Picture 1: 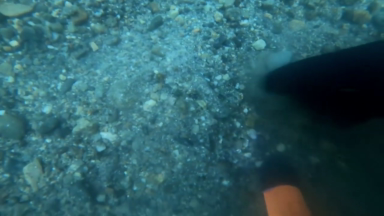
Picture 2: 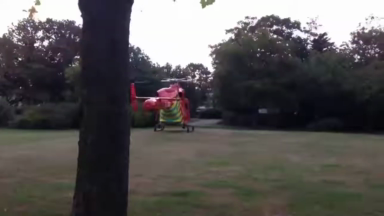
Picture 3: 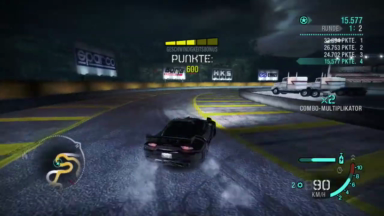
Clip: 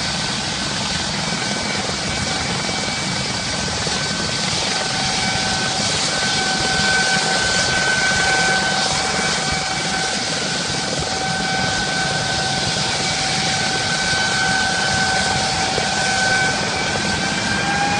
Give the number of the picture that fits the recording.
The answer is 2